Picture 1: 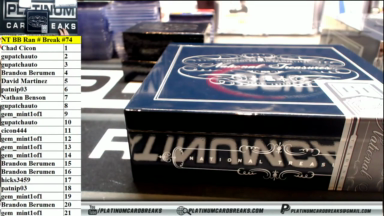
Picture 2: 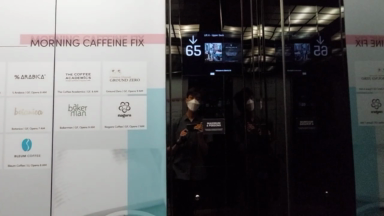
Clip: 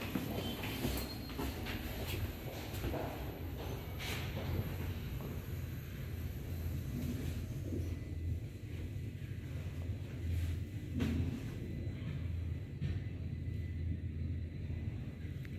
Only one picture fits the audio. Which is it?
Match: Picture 2